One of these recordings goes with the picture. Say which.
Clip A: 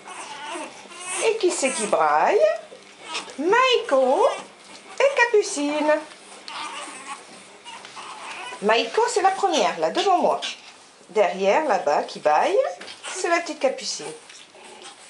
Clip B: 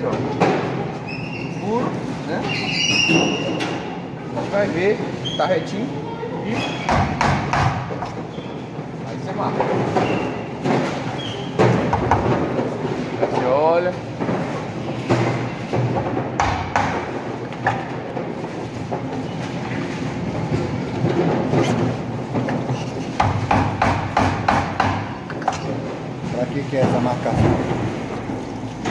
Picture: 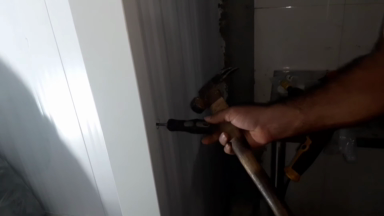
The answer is B